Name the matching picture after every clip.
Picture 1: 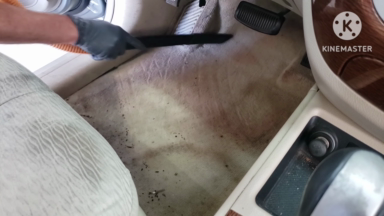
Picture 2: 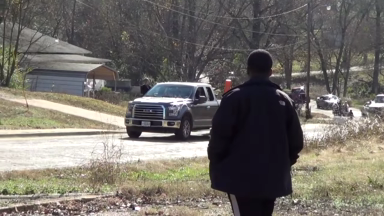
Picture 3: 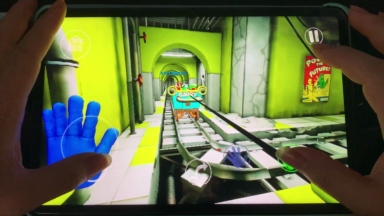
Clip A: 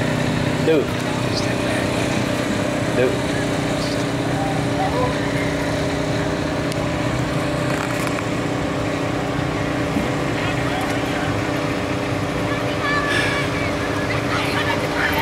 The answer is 2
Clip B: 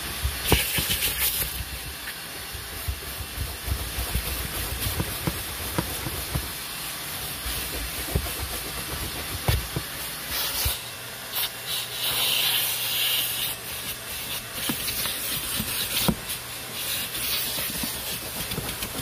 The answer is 1